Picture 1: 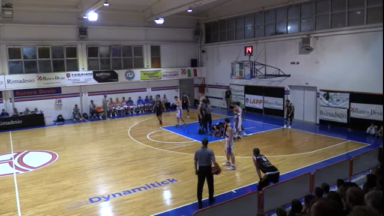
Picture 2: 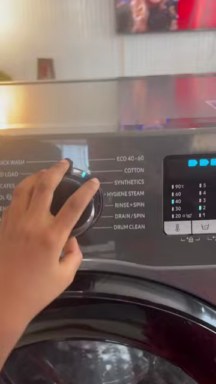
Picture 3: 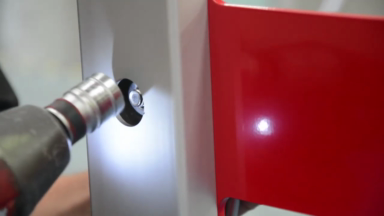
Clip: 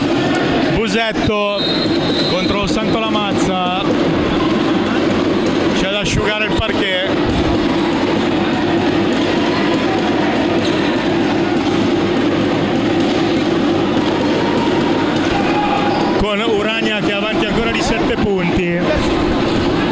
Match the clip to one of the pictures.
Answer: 1